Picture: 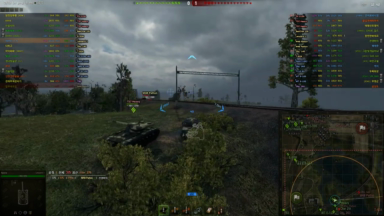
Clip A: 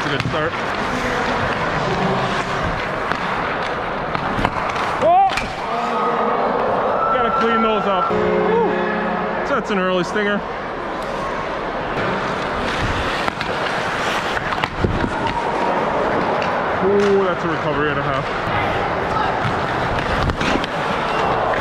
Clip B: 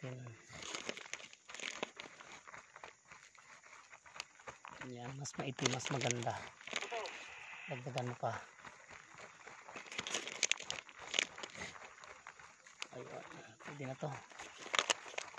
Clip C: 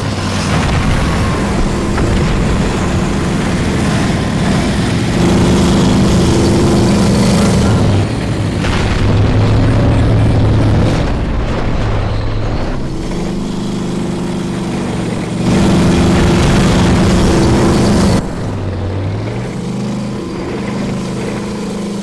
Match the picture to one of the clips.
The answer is C